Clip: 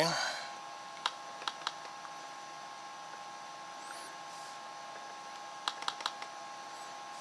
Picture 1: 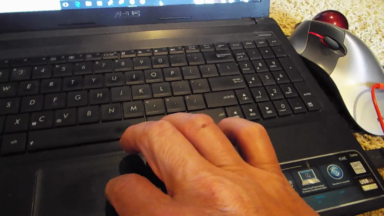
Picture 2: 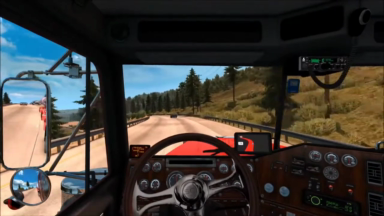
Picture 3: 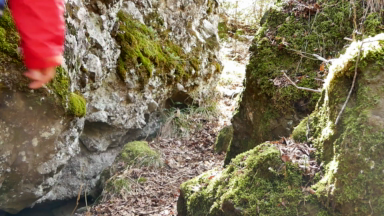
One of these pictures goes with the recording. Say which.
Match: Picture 1